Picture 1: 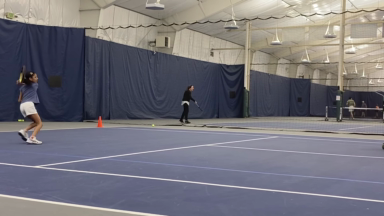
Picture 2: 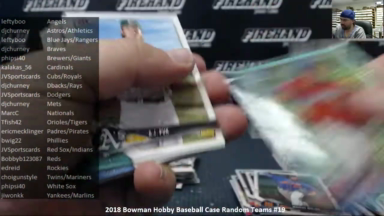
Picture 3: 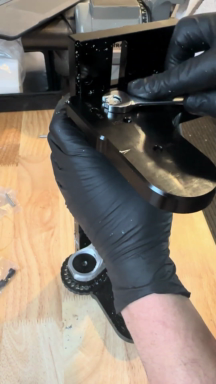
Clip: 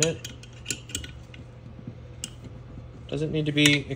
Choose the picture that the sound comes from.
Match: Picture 3